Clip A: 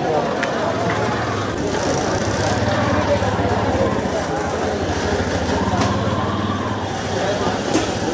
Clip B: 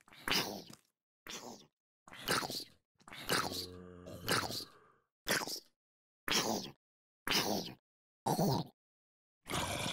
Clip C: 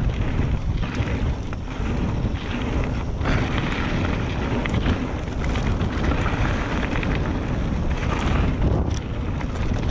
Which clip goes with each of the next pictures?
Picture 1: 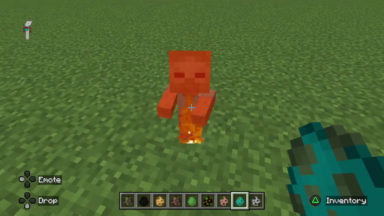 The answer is B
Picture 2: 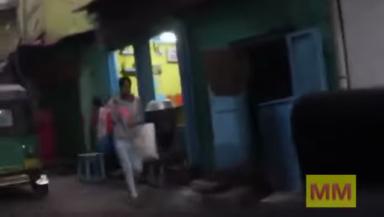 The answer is A